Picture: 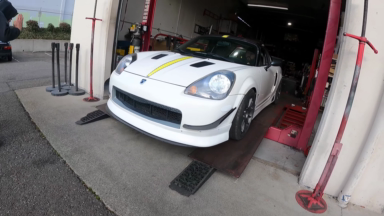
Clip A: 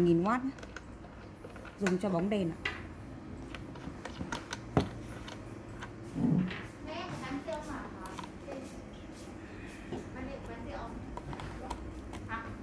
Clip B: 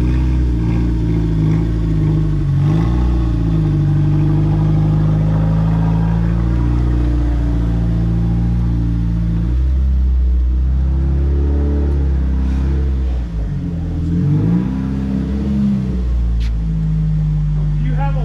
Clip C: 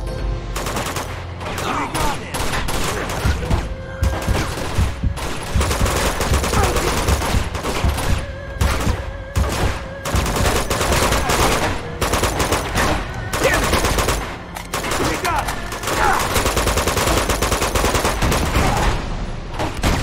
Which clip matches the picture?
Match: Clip B